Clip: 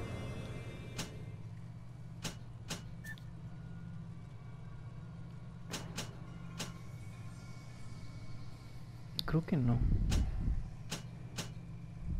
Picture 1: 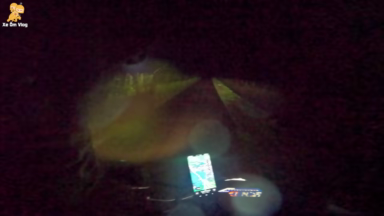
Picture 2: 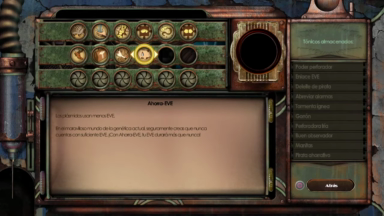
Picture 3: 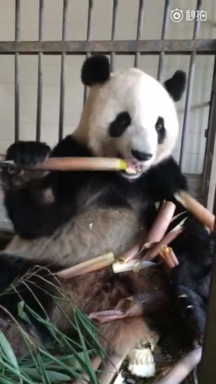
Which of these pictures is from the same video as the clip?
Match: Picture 2